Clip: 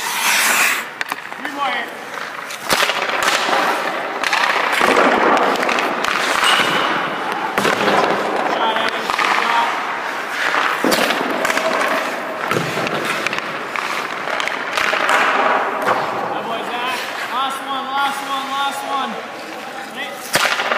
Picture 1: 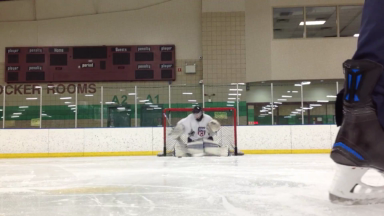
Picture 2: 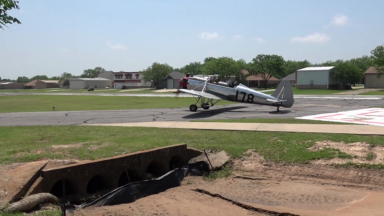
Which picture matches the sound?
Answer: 1